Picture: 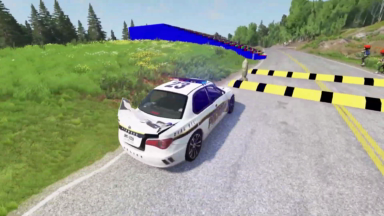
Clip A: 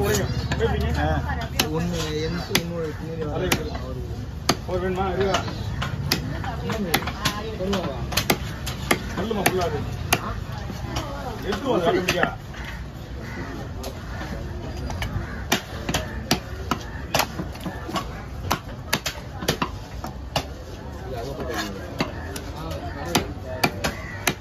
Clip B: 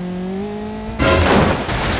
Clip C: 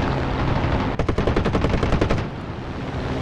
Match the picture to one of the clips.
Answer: B